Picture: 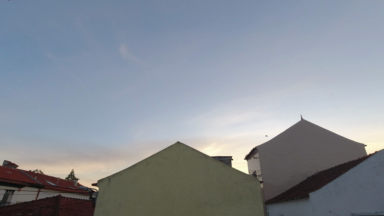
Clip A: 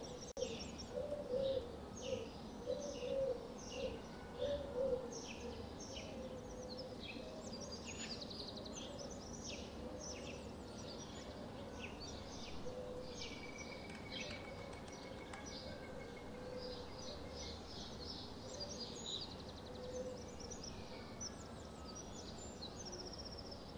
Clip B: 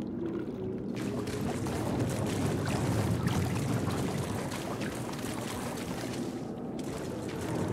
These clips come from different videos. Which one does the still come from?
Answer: A